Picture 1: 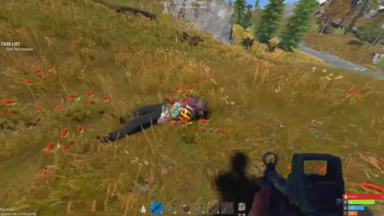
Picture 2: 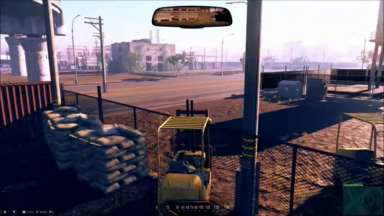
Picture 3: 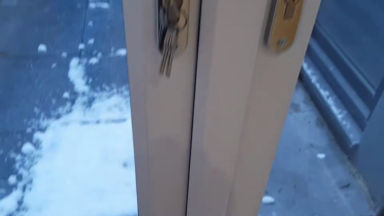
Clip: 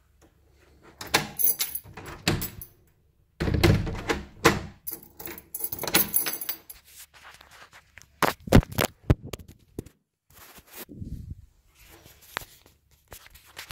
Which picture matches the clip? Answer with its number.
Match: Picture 3